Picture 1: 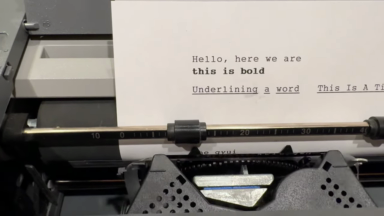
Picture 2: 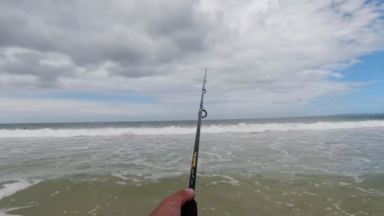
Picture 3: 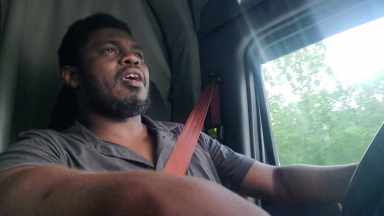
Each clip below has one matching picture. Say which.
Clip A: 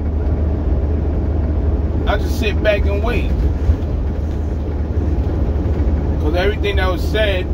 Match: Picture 3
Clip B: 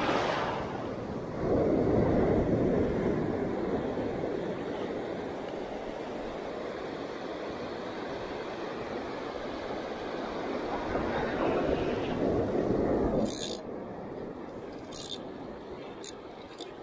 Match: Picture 2